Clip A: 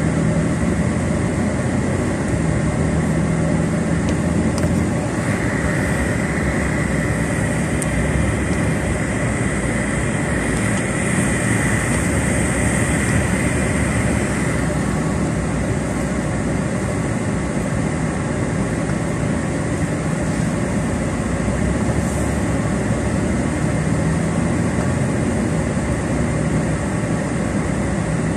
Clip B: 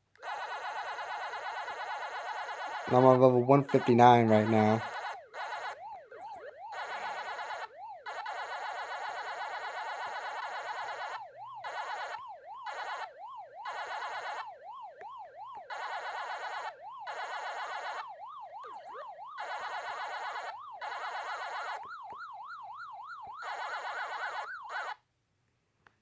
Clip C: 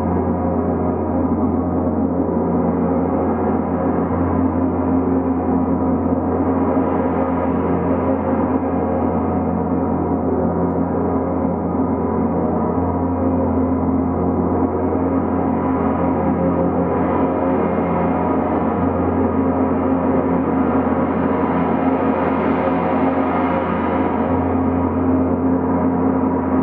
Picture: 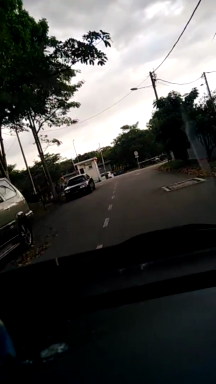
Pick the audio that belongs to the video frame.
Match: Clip A